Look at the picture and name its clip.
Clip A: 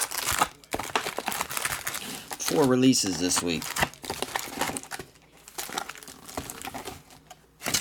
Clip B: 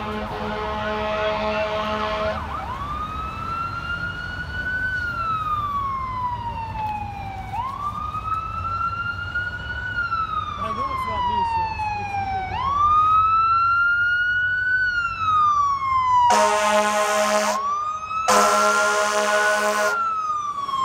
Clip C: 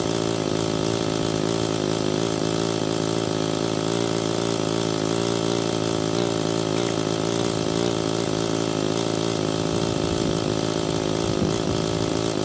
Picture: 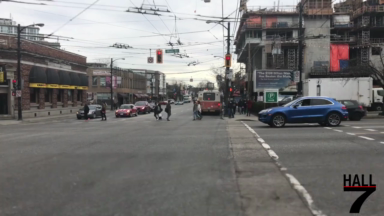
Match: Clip B